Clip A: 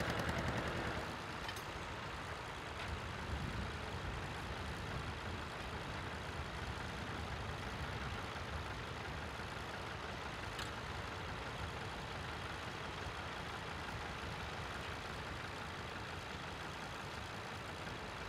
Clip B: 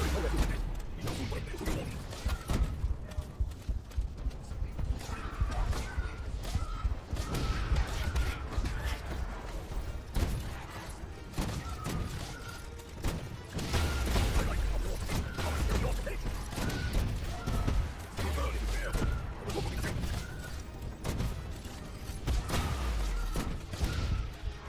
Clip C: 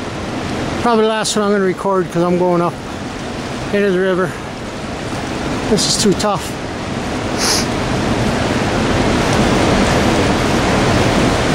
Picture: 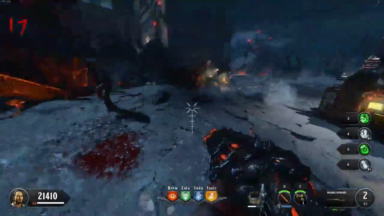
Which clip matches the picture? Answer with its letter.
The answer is B